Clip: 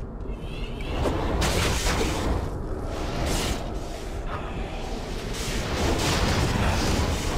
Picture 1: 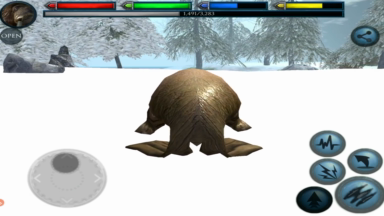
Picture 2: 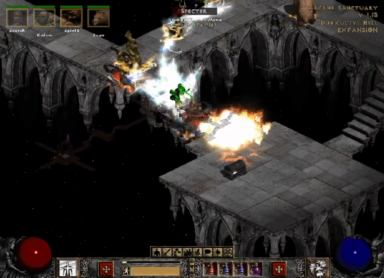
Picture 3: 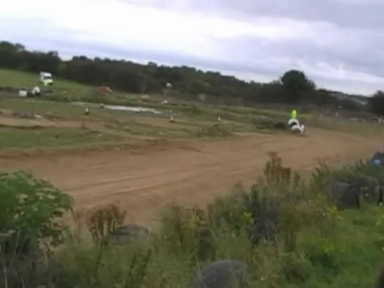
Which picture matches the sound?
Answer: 2